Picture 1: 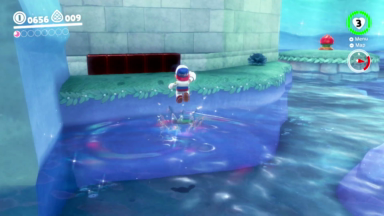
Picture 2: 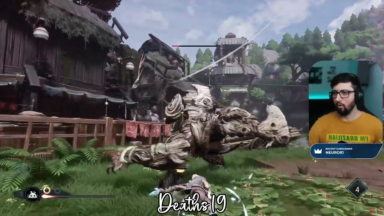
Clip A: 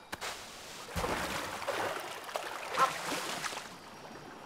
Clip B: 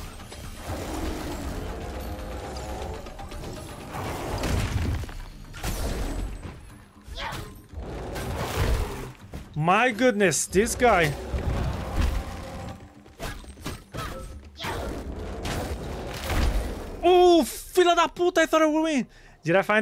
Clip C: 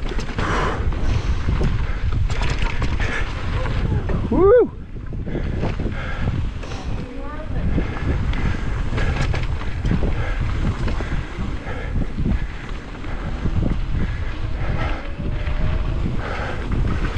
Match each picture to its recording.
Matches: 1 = A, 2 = B